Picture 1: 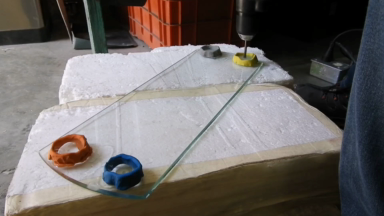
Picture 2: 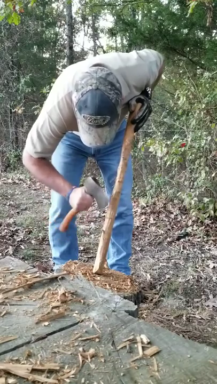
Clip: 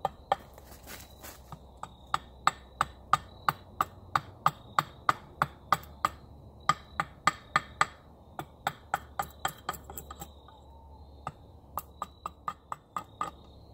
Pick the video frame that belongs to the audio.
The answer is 2